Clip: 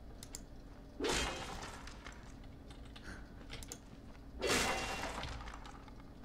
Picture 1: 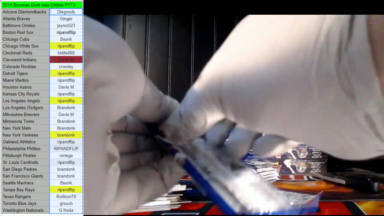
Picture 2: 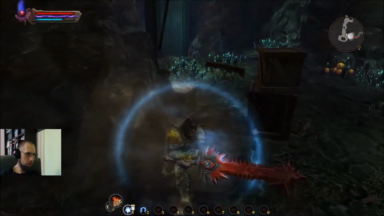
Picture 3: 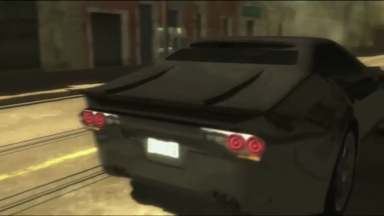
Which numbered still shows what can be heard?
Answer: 2